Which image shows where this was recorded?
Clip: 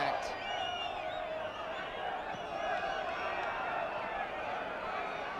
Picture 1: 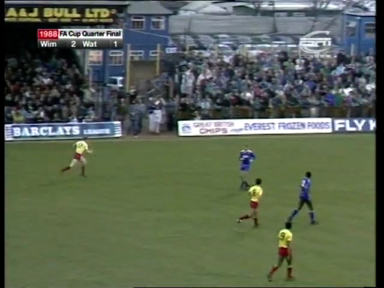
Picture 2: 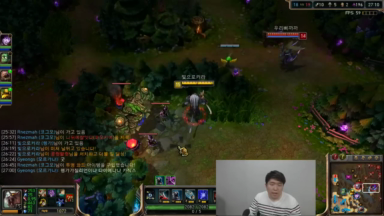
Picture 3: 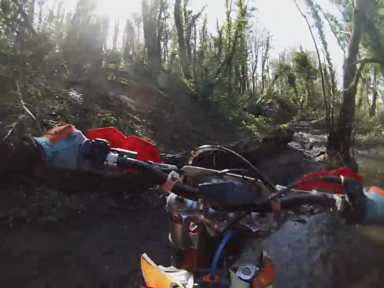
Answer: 1